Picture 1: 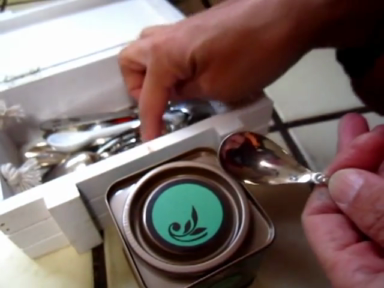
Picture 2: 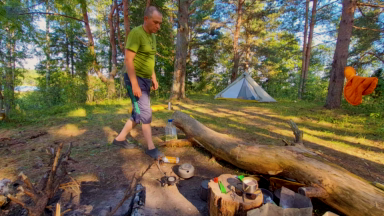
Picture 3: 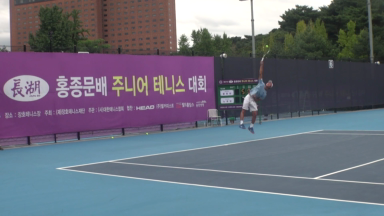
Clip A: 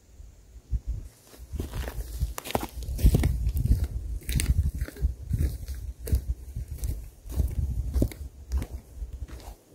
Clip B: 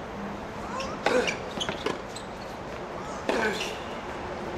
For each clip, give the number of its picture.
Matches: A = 2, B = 3